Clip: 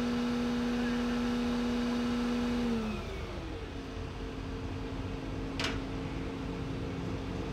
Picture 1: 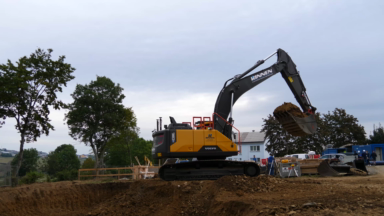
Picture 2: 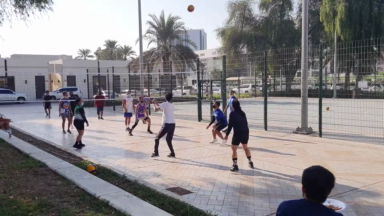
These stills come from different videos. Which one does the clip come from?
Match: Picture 1